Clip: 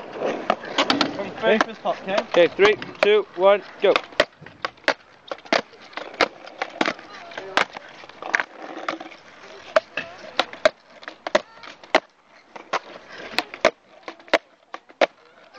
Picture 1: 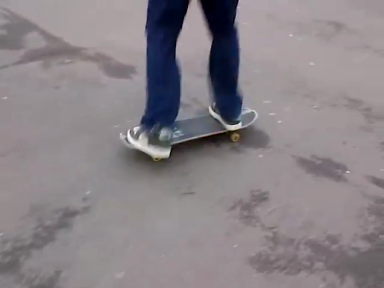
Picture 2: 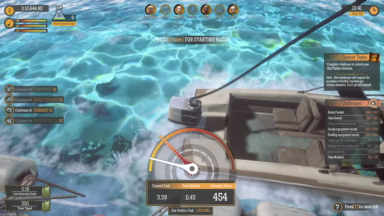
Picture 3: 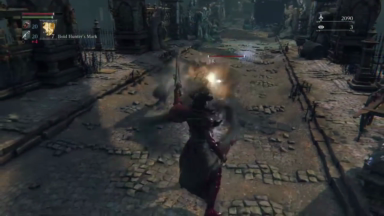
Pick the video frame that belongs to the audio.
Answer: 1